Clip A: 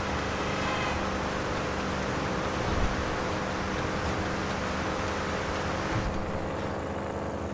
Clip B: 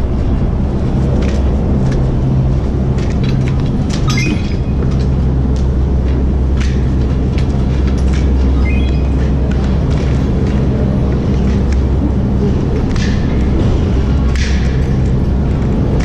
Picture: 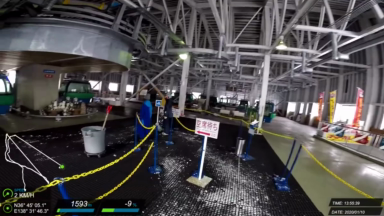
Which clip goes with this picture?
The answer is B